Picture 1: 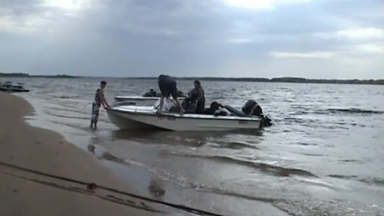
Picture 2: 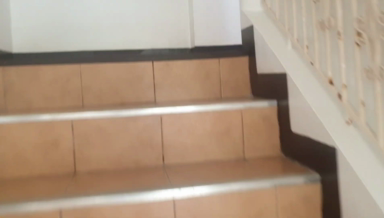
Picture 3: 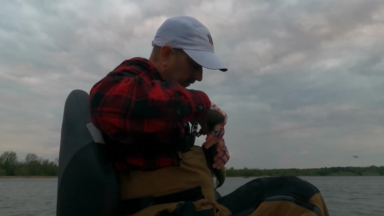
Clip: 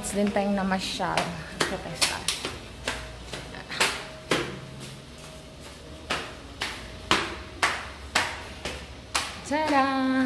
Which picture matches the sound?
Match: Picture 2